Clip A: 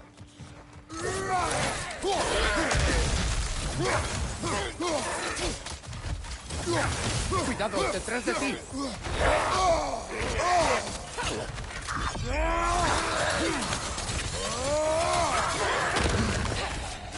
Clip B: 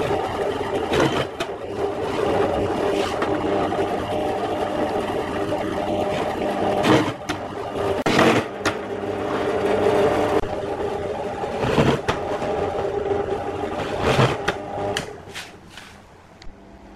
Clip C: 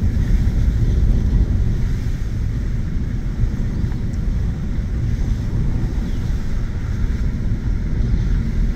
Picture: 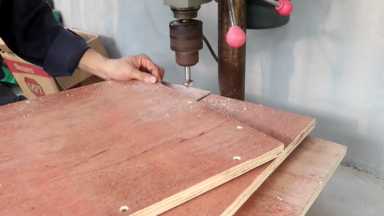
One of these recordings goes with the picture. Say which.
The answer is B